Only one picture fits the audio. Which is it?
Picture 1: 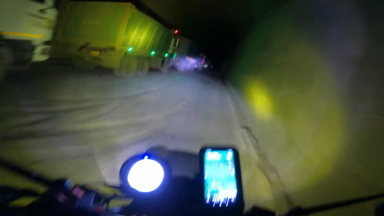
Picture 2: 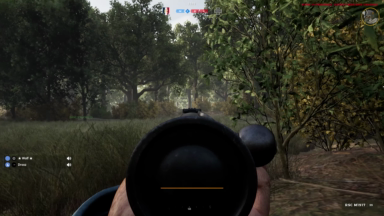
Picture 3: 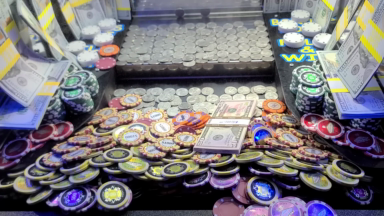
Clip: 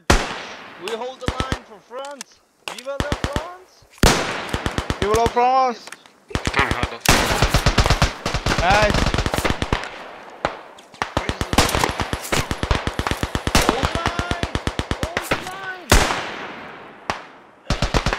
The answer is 2